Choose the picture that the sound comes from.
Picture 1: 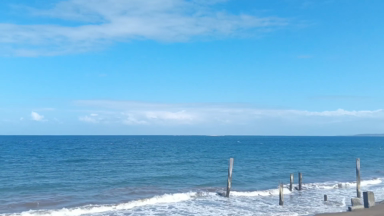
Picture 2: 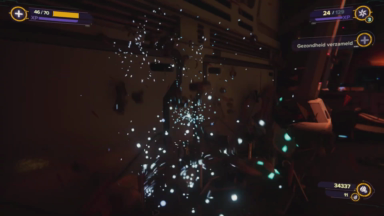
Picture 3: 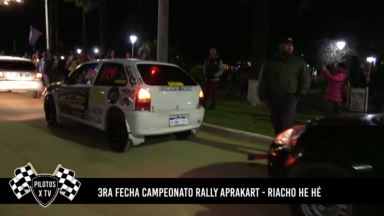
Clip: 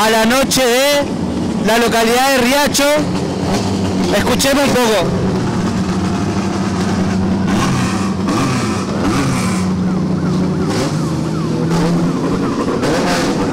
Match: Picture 3